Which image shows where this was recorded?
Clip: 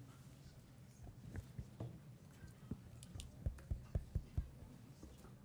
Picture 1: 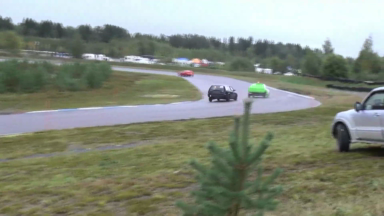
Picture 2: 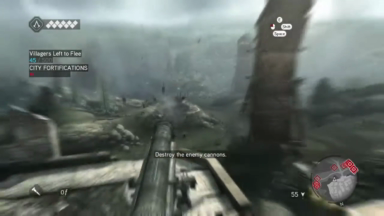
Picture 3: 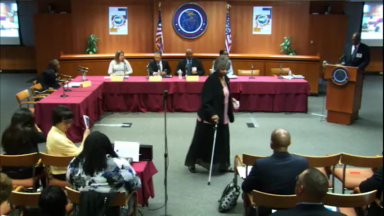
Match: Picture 3